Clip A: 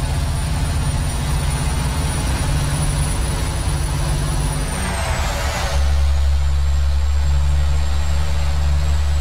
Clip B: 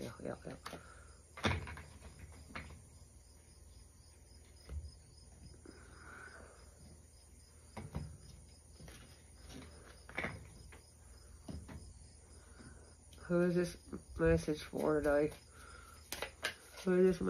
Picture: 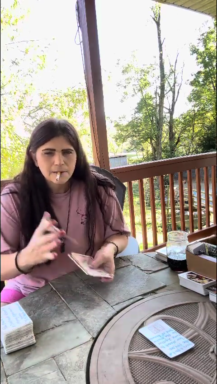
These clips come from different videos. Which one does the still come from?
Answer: B